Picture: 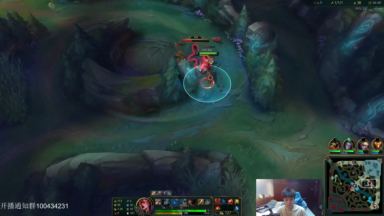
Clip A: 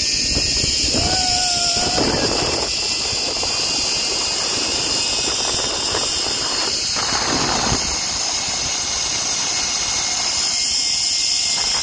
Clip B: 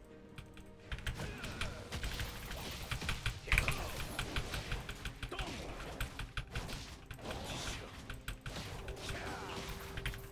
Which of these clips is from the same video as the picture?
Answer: B